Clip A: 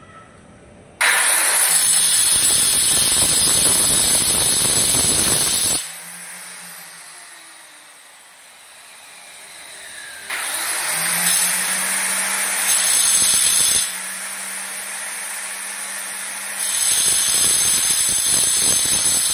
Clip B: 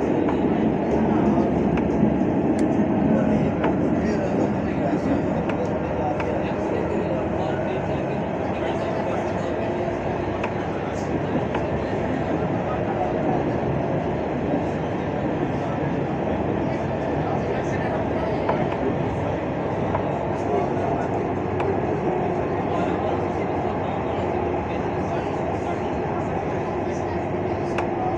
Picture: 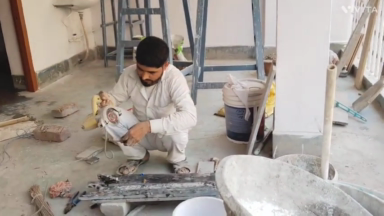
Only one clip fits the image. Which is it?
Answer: A